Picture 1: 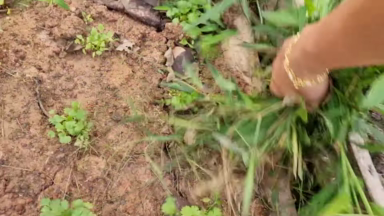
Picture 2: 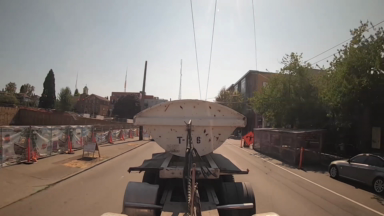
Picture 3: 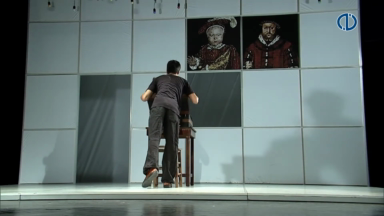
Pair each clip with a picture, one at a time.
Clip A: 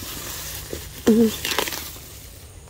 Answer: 1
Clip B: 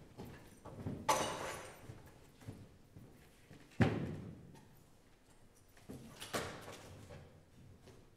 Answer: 3